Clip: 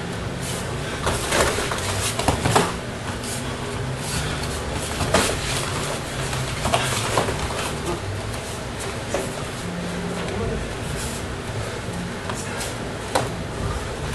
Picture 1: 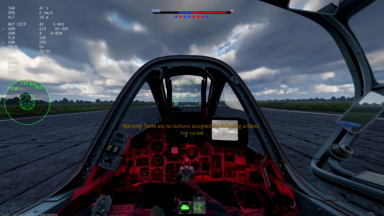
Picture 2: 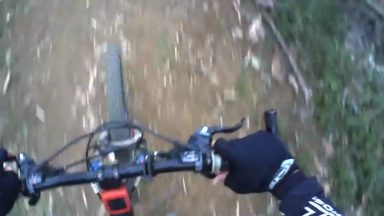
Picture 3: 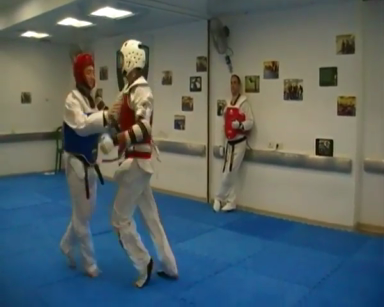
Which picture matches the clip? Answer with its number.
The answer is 3